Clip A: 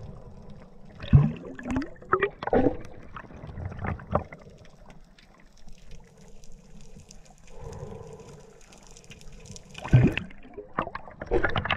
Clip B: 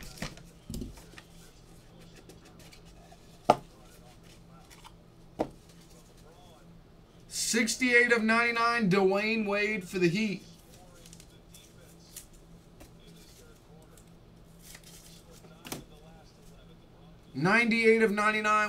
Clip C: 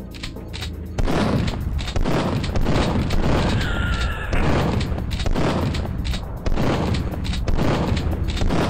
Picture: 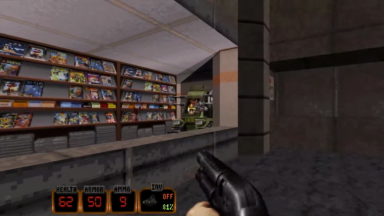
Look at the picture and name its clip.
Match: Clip C